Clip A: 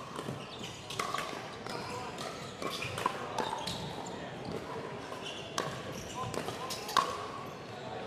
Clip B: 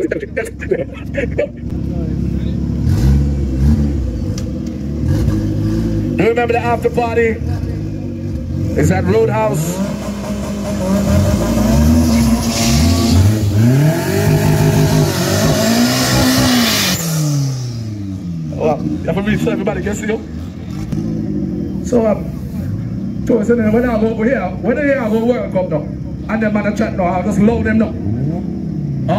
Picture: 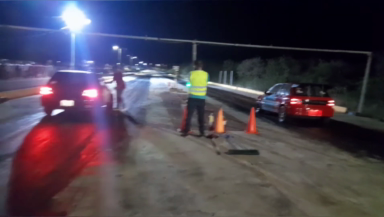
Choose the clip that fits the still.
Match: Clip B